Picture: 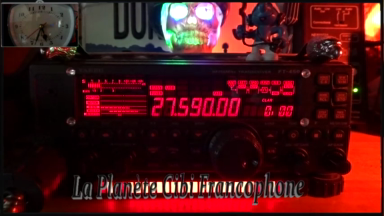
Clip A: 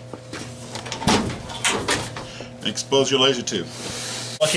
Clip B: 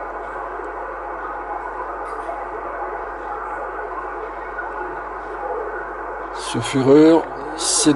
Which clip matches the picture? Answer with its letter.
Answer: B